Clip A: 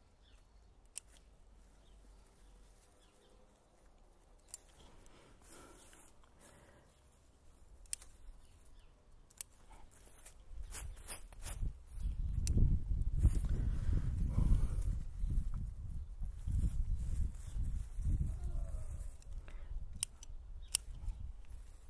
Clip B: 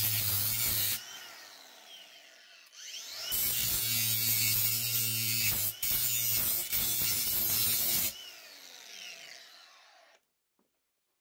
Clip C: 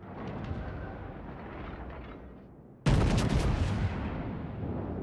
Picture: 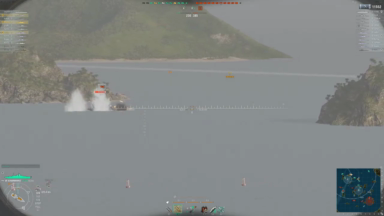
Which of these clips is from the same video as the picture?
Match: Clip C